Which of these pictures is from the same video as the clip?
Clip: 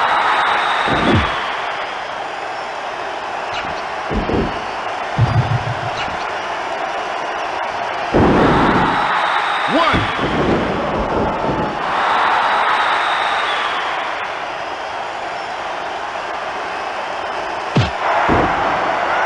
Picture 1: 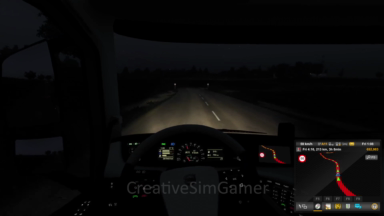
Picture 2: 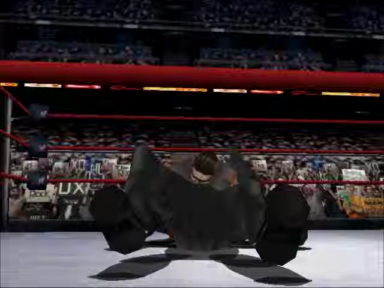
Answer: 2